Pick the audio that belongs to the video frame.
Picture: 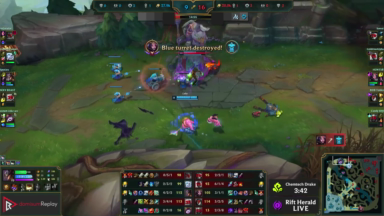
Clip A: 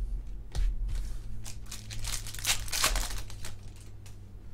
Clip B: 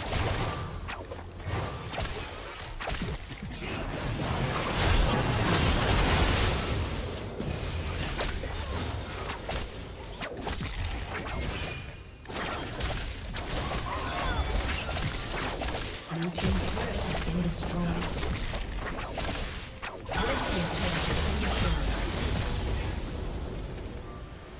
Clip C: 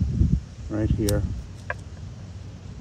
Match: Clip B